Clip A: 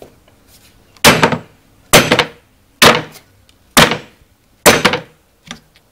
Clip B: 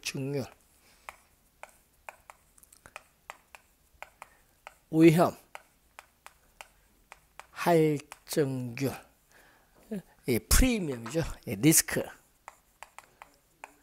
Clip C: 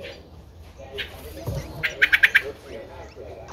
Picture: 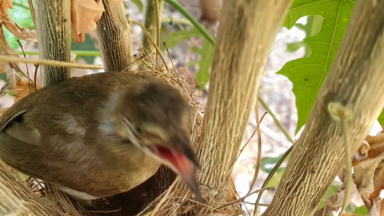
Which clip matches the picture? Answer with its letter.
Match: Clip C